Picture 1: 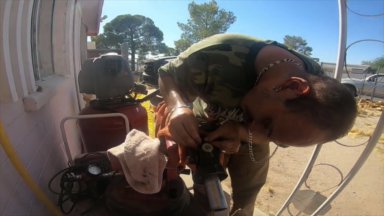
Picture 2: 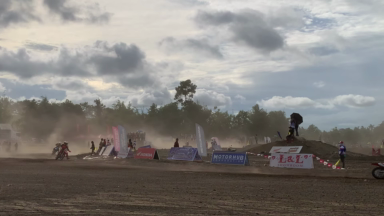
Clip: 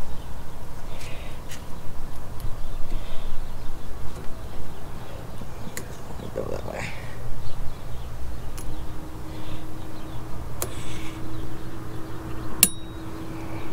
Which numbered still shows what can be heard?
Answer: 1